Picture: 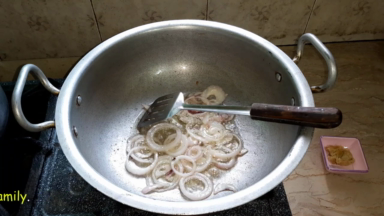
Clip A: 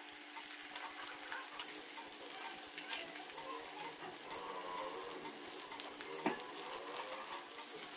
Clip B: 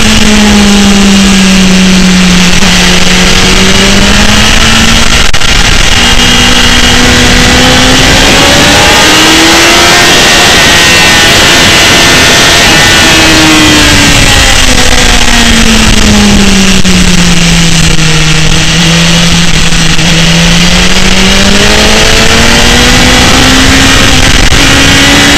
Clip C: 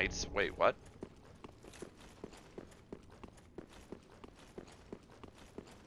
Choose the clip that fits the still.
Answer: A